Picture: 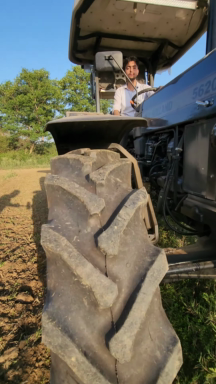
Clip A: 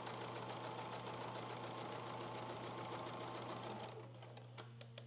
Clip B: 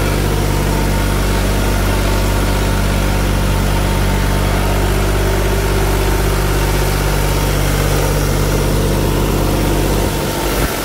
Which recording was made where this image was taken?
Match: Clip B